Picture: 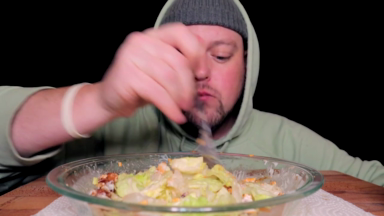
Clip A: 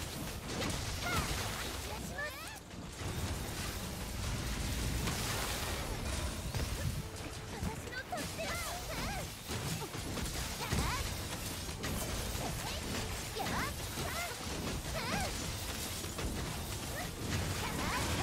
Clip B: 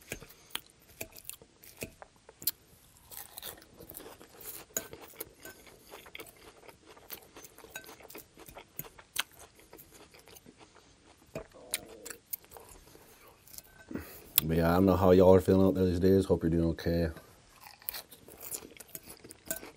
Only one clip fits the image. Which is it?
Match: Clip B